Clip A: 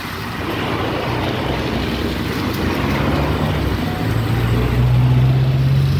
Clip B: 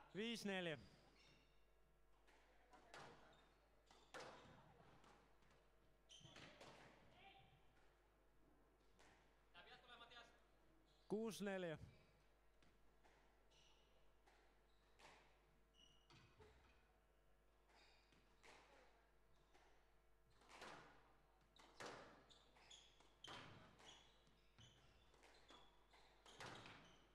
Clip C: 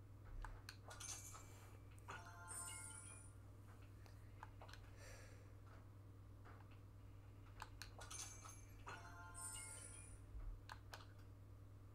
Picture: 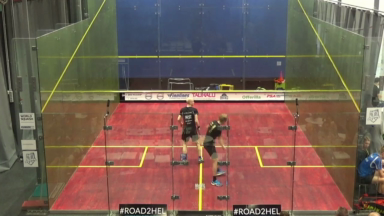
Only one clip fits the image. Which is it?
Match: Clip B